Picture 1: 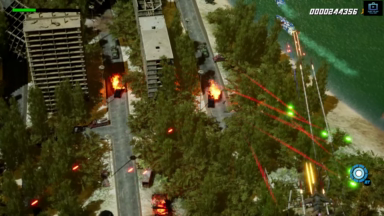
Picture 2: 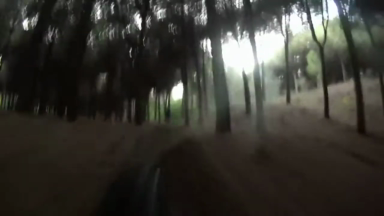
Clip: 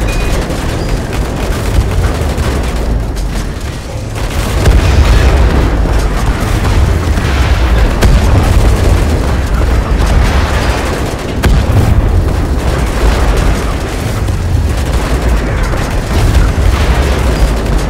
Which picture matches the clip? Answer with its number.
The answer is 1